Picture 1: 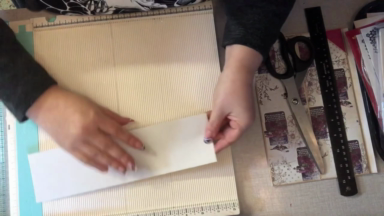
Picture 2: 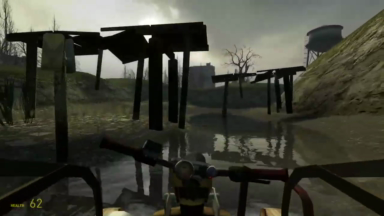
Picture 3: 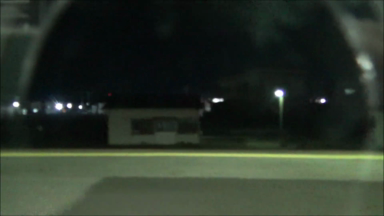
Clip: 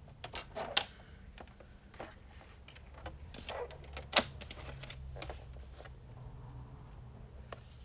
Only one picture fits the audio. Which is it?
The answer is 1